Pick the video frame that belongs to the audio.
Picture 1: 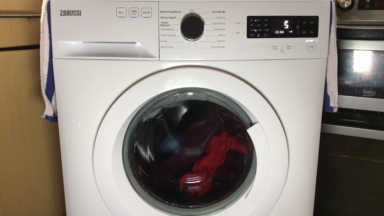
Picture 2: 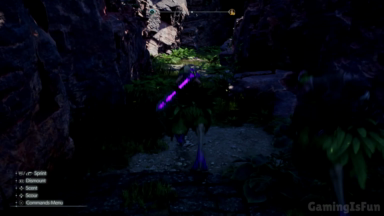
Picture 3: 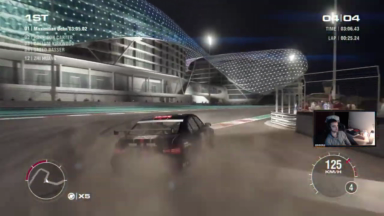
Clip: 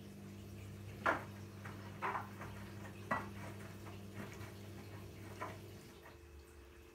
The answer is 1